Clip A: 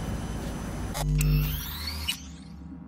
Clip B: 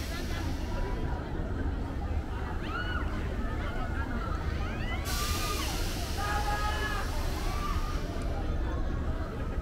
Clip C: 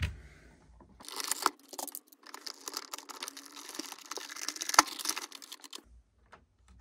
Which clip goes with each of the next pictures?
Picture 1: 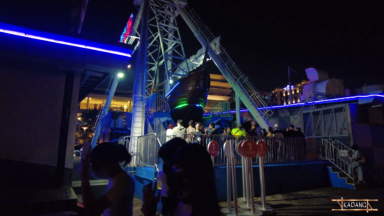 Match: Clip B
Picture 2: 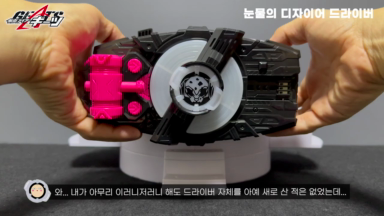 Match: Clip C